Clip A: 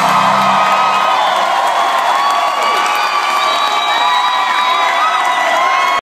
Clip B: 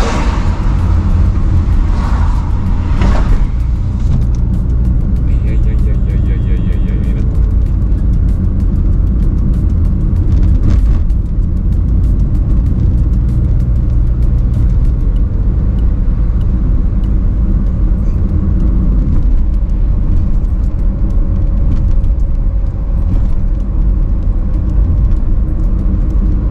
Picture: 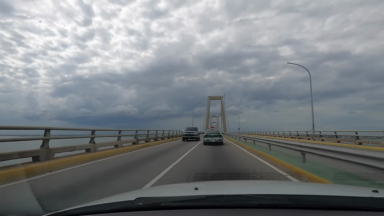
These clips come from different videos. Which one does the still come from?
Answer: B